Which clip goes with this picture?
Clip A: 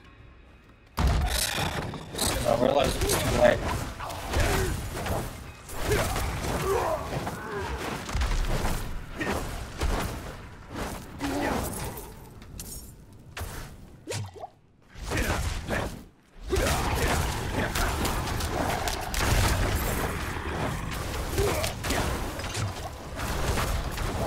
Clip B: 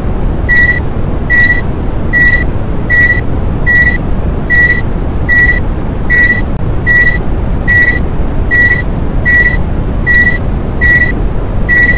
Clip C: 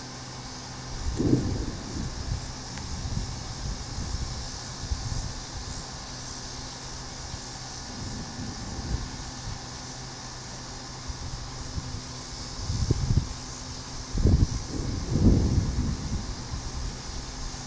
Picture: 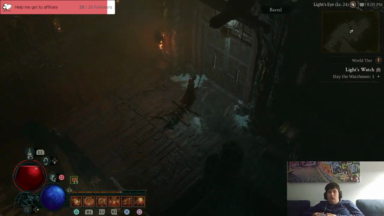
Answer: A